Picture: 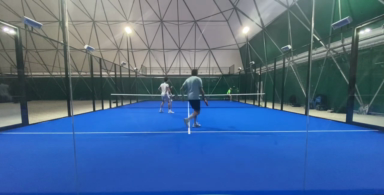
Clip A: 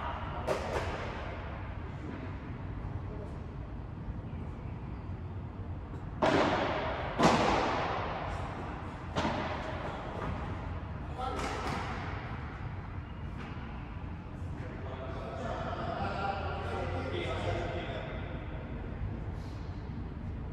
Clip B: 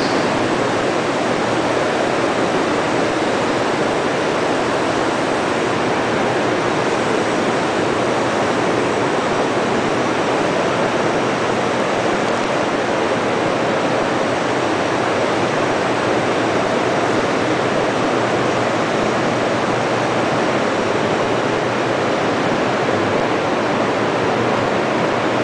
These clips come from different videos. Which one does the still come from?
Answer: A